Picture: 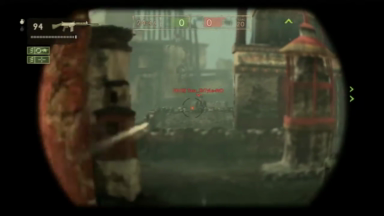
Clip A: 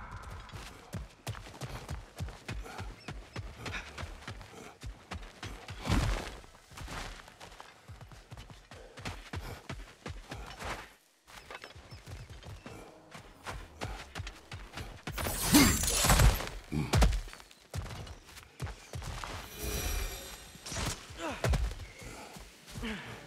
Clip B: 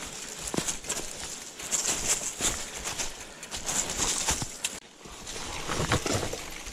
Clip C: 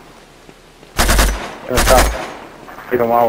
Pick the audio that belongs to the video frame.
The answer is C